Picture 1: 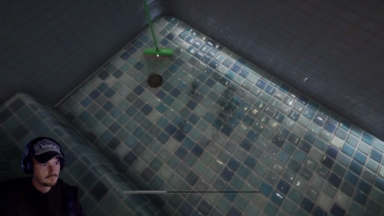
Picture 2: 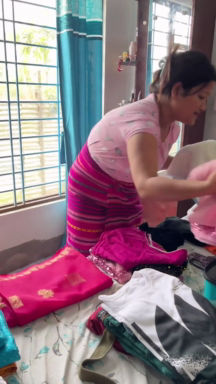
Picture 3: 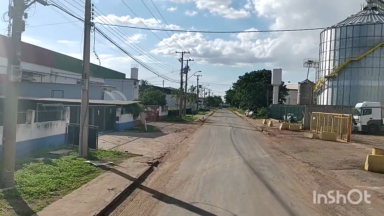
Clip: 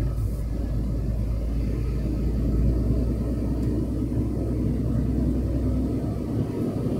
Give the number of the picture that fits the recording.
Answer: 3